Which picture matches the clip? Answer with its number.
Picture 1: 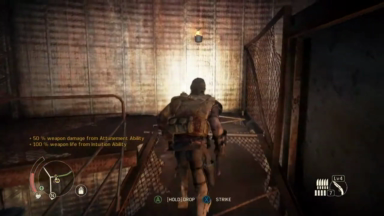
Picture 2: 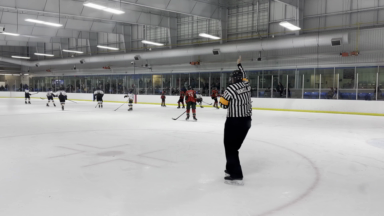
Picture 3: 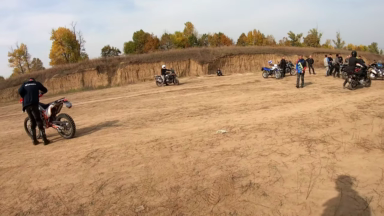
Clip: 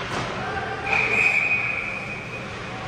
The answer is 2